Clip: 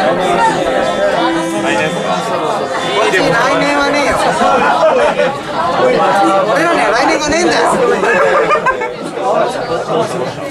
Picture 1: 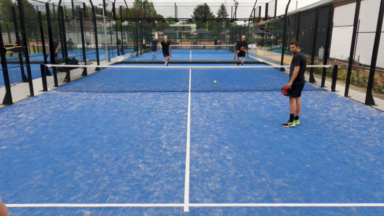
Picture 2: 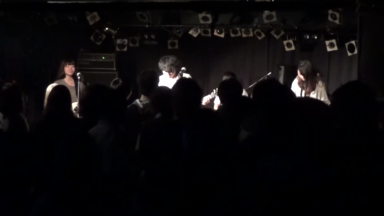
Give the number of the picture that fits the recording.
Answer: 2